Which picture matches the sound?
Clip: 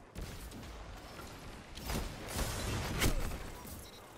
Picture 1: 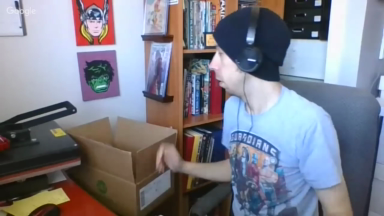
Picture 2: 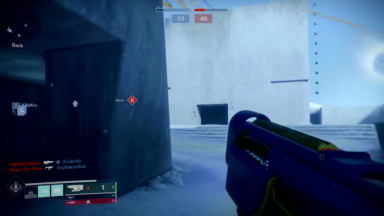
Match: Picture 2